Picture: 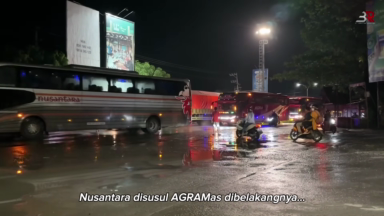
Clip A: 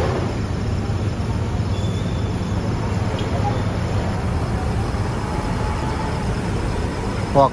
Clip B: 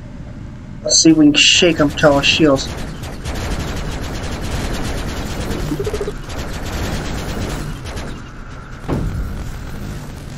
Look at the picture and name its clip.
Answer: A